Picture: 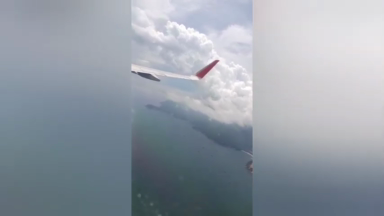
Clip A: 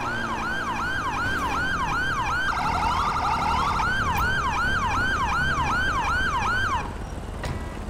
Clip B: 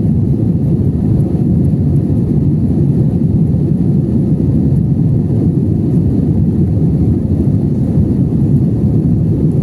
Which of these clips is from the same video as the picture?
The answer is B